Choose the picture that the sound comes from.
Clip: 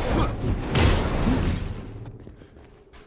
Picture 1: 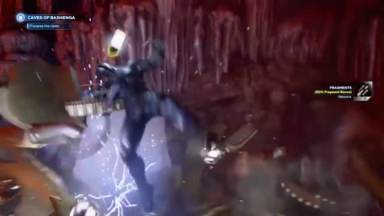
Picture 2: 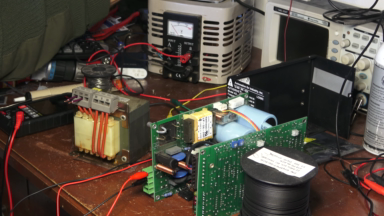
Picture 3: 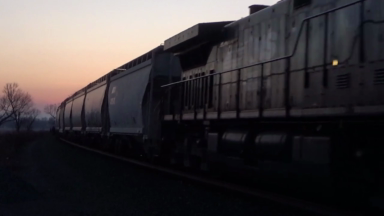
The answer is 1